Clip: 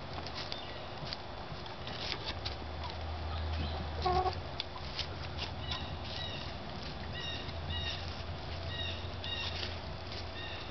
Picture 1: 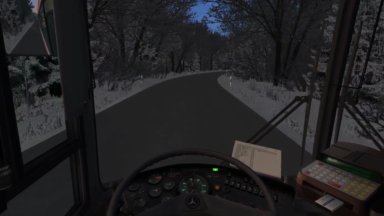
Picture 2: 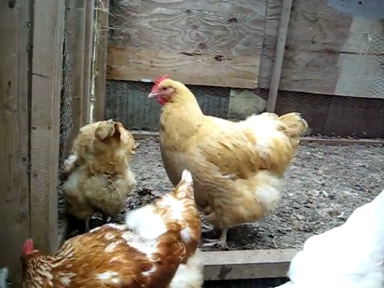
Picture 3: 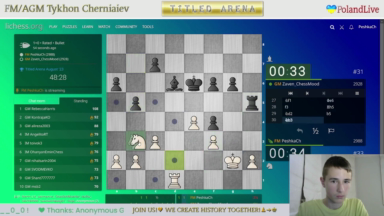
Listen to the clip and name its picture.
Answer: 2